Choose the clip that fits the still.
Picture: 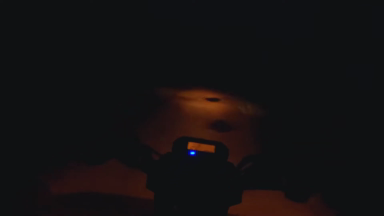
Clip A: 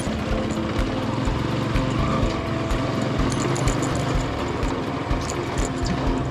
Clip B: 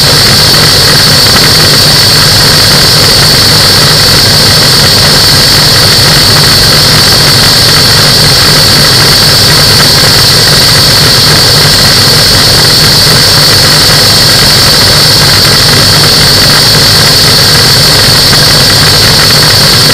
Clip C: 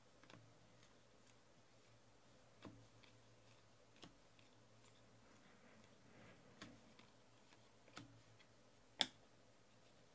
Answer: A